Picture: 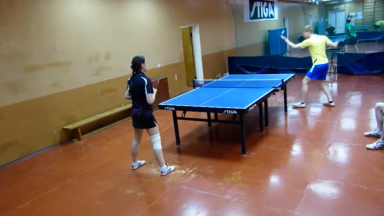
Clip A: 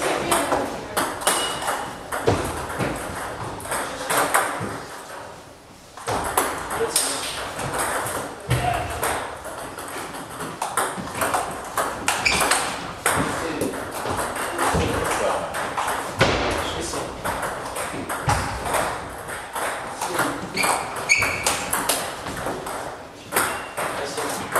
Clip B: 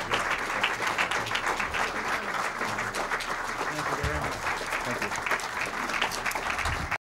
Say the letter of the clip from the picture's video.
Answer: A